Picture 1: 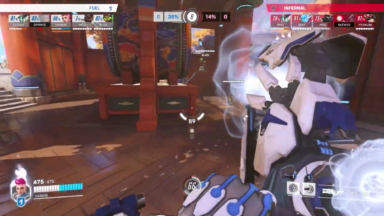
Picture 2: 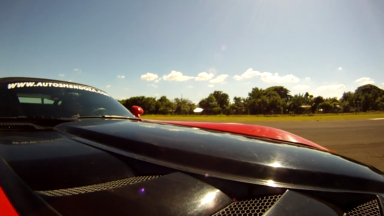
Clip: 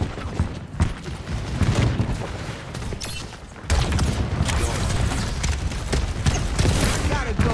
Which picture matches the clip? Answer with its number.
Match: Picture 1